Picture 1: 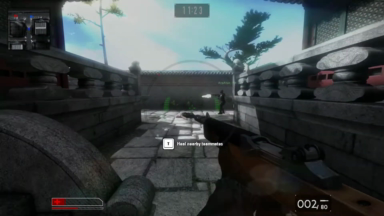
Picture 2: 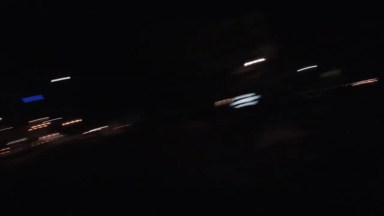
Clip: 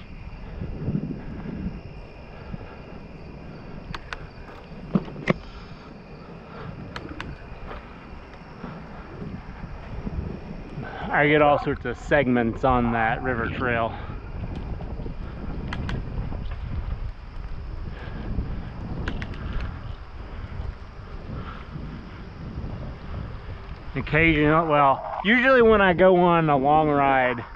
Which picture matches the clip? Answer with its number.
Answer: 2